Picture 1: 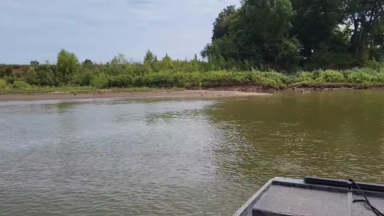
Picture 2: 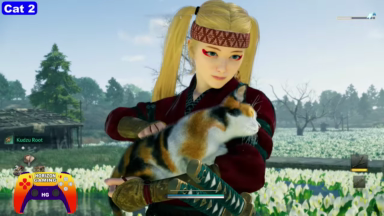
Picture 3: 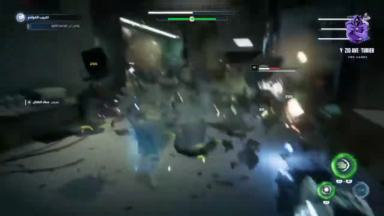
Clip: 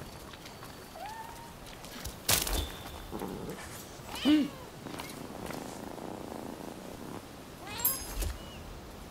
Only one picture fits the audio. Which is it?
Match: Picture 2